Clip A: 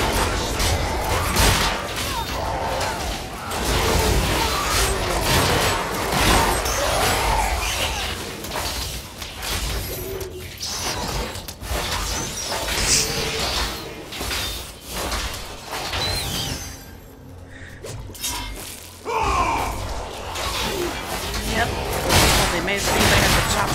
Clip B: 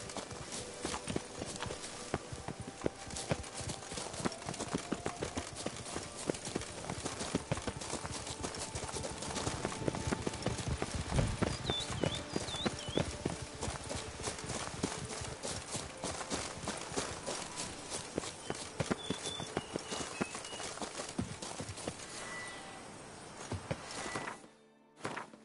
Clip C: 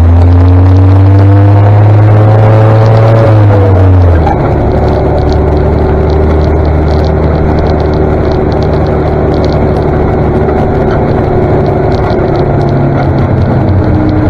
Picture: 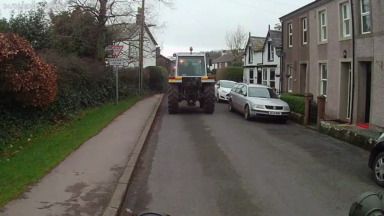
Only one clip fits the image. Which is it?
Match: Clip C